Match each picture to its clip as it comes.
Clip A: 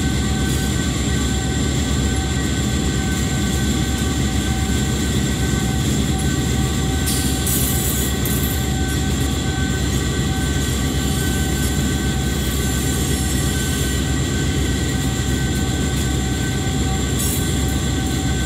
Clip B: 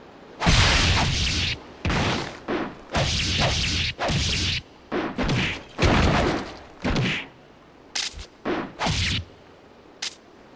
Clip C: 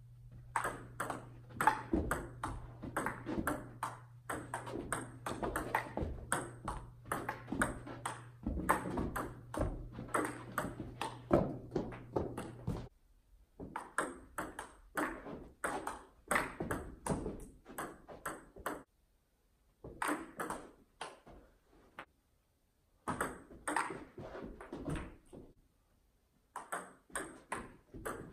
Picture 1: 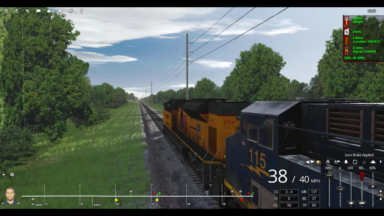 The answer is A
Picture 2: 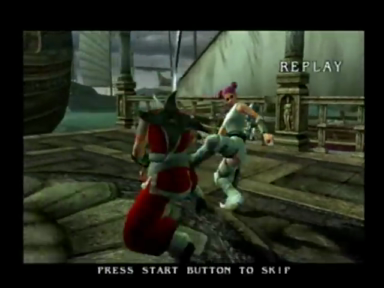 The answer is B